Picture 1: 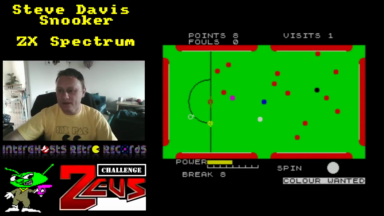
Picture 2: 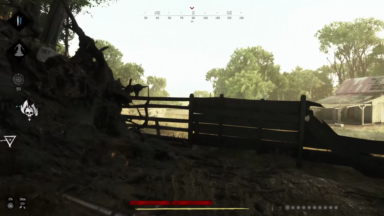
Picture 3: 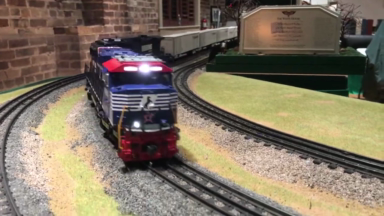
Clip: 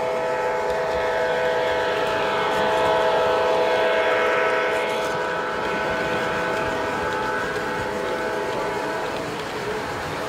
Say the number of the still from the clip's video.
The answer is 3